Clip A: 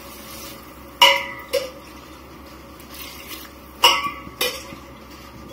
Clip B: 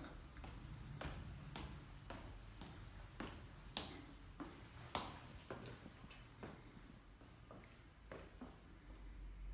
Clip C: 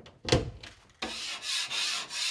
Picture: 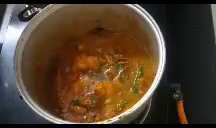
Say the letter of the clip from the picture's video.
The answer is A